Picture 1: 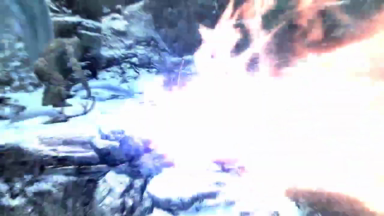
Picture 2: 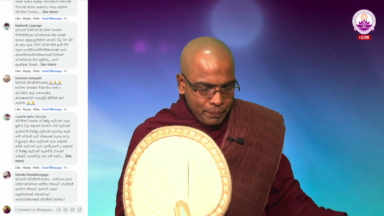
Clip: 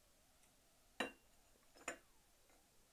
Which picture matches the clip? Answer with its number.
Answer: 2